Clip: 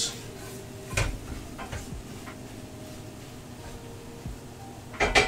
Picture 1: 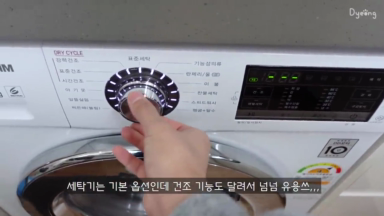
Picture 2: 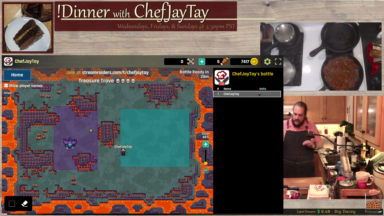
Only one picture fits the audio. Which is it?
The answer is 2